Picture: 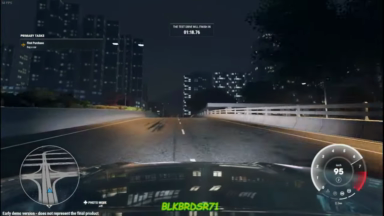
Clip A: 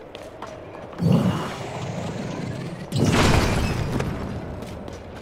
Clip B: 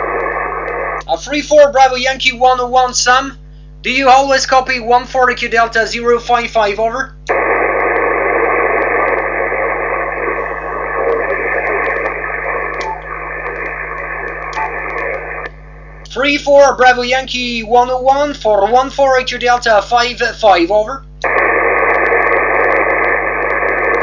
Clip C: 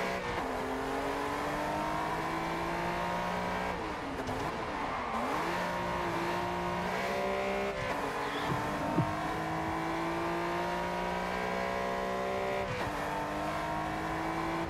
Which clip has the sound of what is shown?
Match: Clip C